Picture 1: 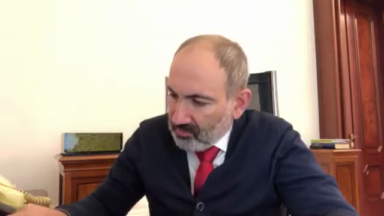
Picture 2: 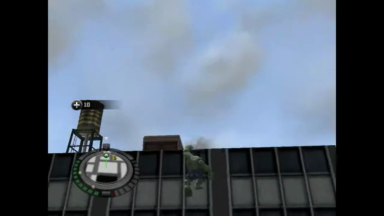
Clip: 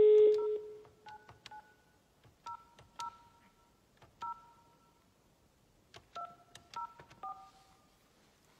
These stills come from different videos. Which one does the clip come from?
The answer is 1